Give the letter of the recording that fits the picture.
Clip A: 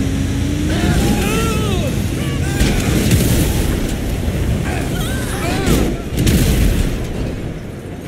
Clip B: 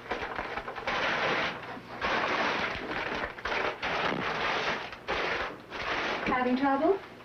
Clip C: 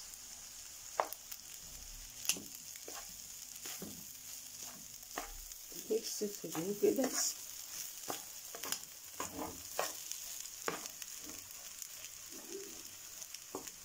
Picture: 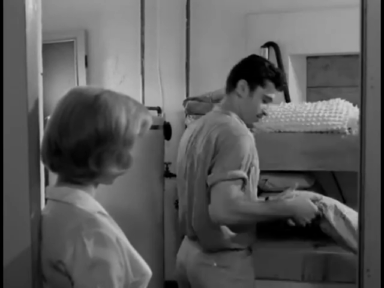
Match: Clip B